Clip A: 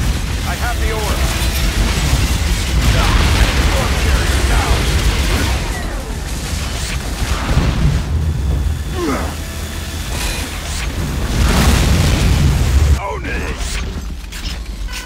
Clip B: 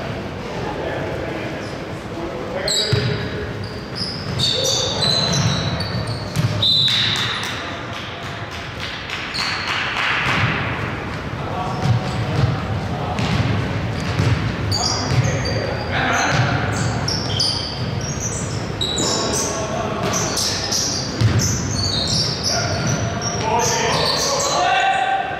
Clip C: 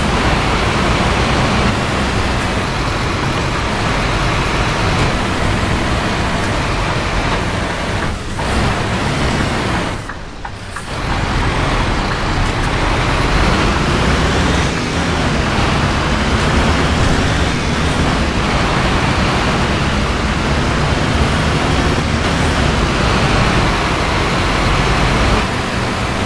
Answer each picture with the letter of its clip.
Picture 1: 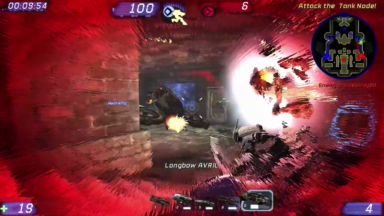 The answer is A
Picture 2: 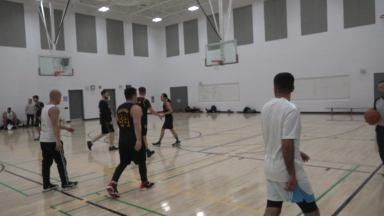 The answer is B